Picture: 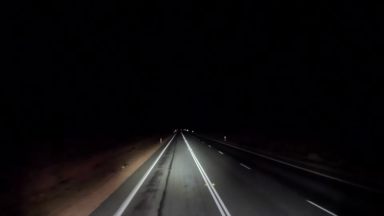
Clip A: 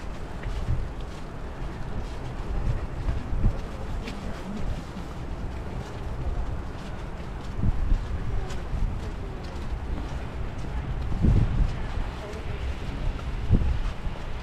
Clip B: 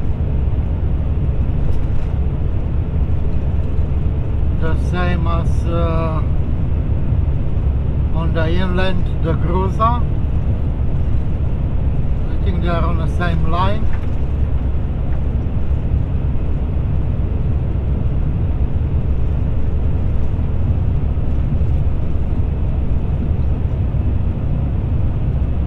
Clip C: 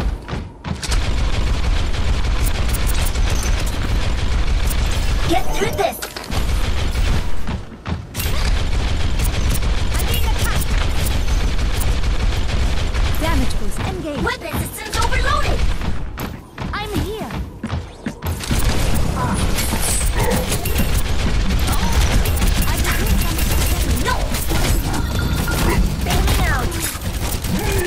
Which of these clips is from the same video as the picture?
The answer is B